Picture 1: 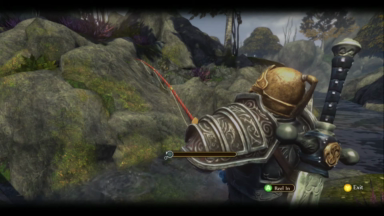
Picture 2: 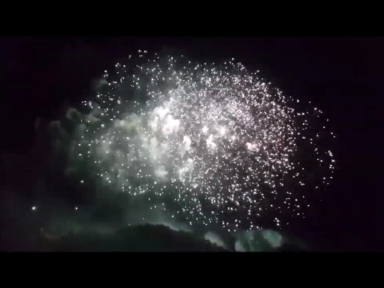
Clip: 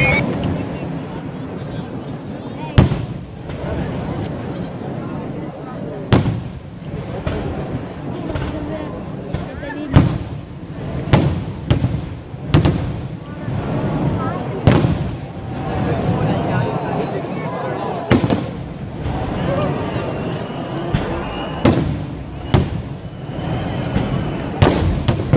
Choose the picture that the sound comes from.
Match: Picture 2